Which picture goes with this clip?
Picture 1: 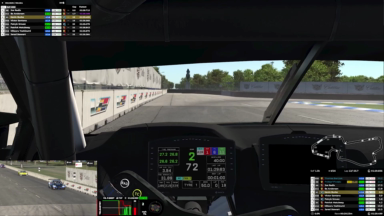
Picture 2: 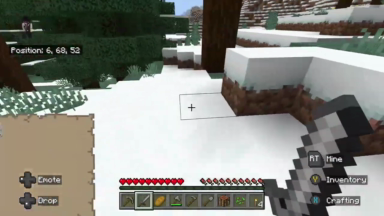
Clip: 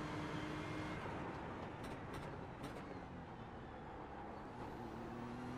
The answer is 1